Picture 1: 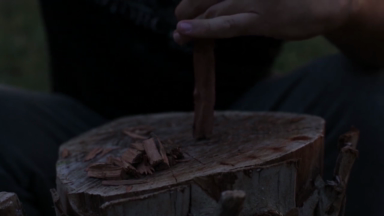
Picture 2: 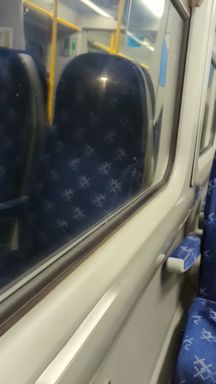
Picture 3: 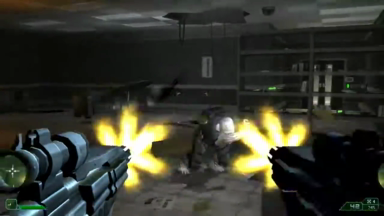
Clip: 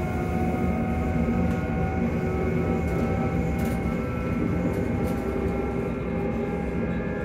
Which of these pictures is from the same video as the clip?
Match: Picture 2